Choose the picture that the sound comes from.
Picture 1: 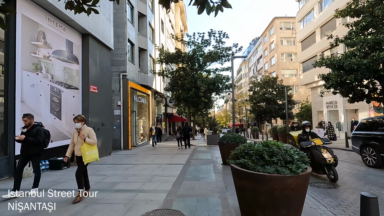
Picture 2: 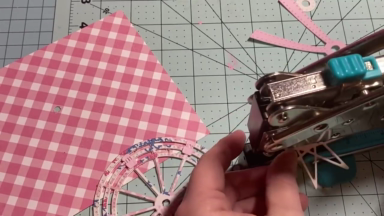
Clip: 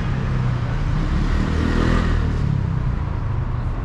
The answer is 1